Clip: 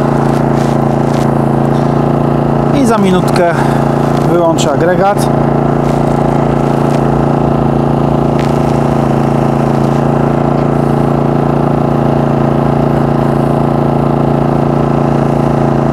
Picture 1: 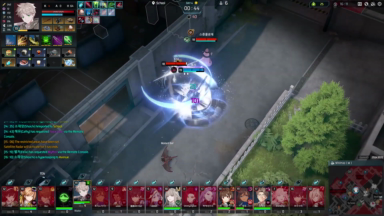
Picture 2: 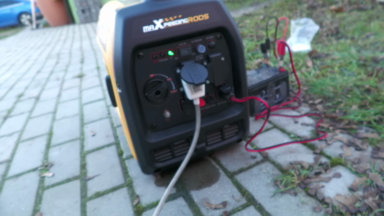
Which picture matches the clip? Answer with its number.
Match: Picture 2